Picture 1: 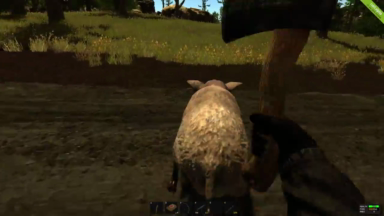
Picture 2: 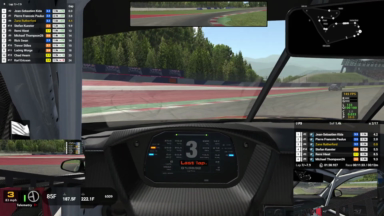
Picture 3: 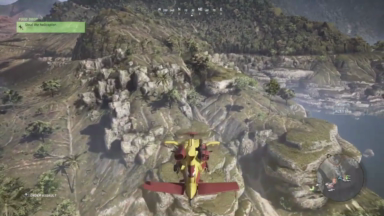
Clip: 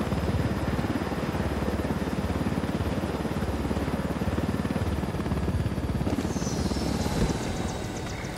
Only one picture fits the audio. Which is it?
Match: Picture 3